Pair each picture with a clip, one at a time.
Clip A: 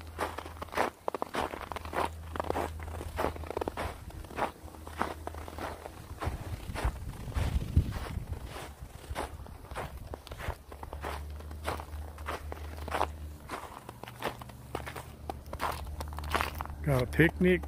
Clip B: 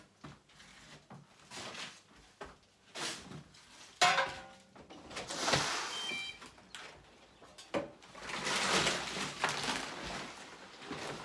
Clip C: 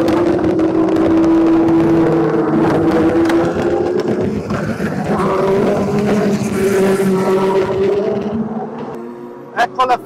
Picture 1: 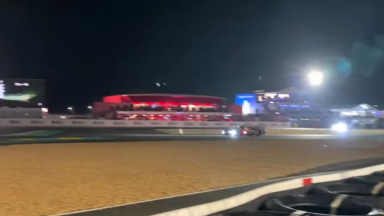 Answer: C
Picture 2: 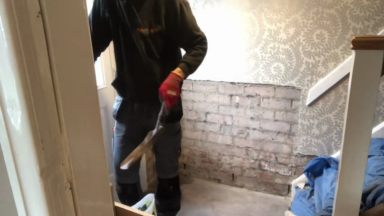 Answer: B